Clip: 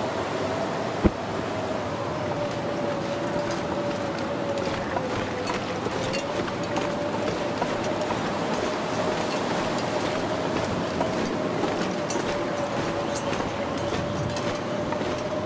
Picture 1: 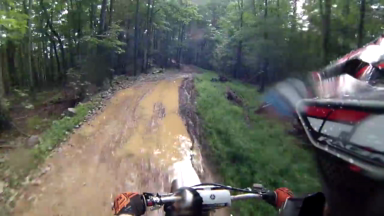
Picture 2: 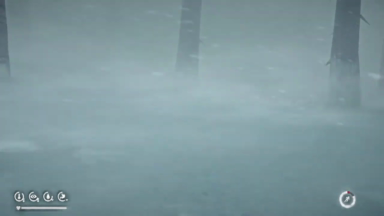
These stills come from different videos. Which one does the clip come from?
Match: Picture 2